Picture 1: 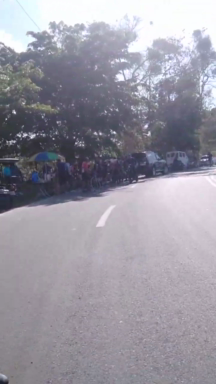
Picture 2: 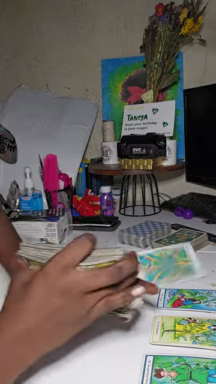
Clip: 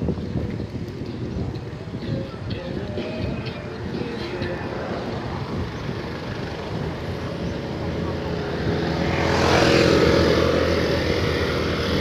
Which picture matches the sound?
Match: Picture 1